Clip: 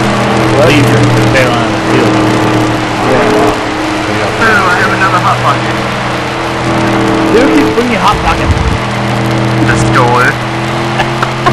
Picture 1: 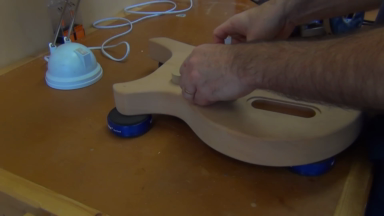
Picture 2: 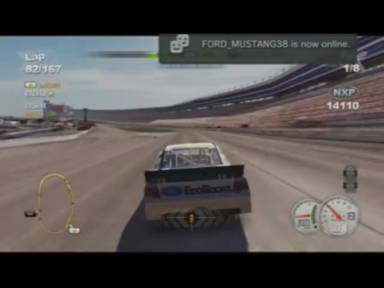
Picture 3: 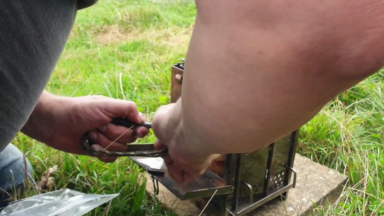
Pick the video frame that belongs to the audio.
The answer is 2